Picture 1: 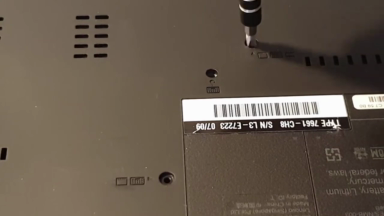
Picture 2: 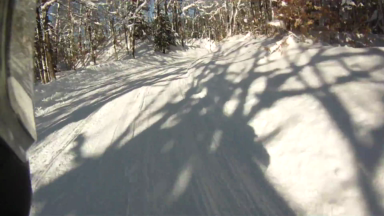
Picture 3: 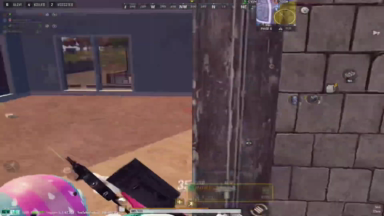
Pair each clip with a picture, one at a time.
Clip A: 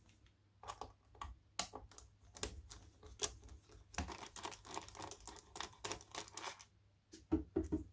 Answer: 1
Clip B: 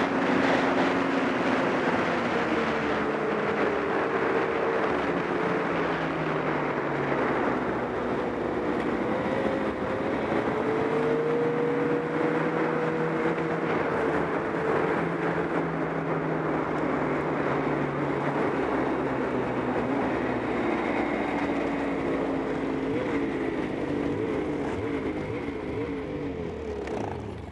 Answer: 2